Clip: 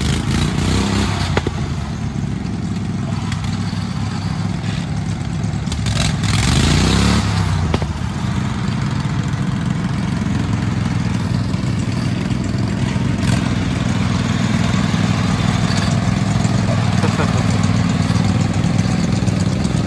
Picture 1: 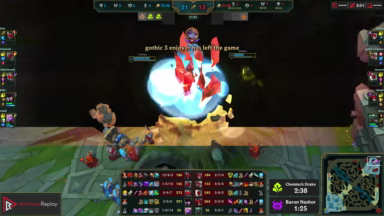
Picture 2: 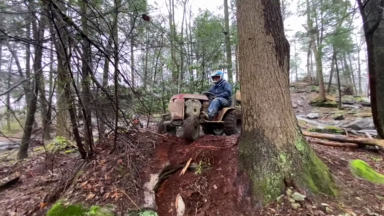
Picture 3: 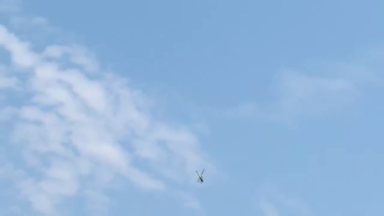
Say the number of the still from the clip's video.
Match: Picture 2